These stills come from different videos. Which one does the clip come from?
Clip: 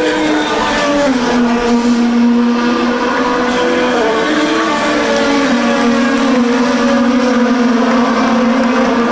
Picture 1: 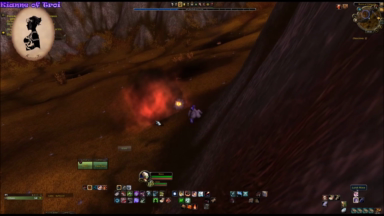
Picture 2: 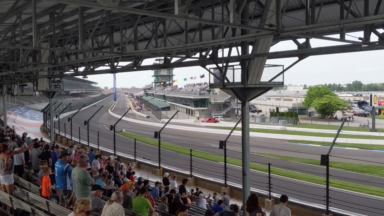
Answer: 2